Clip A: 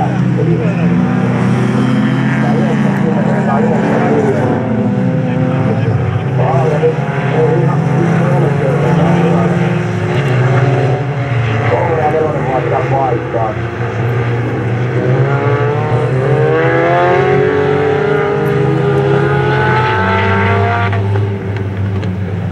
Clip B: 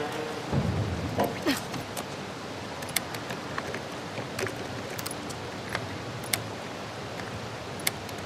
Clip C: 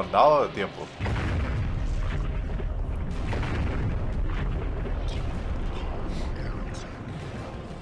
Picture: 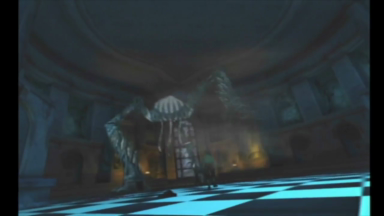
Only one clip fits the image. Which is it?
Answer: C